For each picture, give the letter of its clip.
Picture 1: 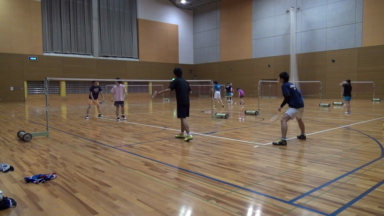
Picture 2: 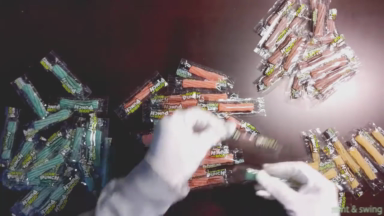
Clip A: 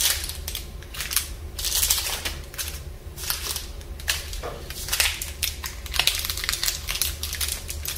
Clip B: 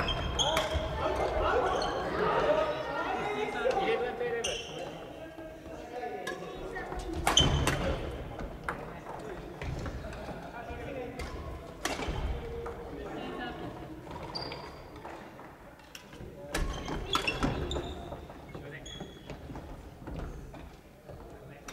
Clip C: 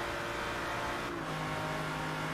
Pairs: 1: B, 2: A